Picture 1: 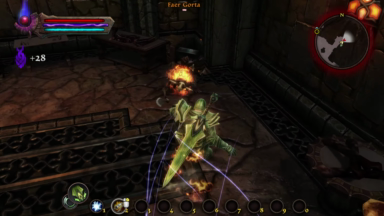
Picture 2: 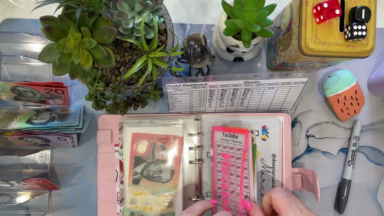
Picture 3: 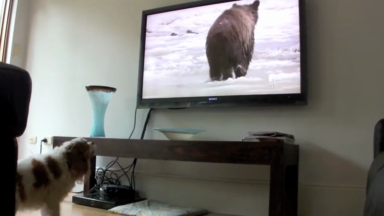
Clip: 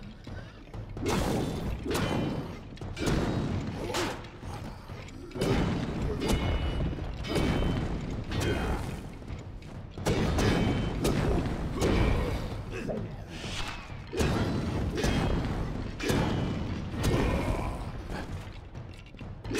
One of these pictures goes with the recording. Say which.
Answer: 1